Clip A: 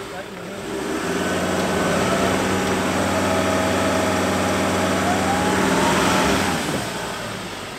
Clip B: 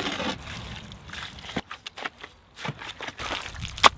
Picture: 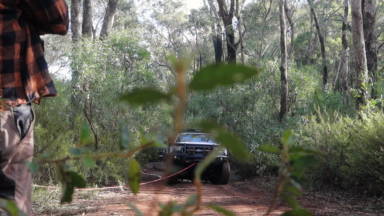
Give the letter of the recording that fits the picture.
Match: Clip A